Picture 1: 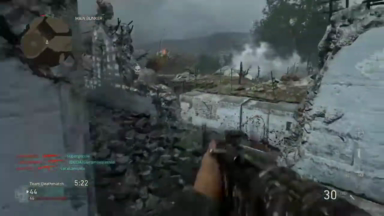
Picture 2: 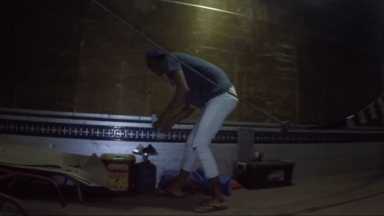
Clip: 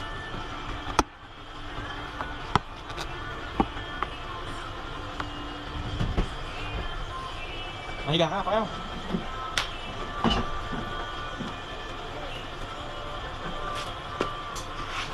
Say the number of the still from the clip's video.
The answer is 2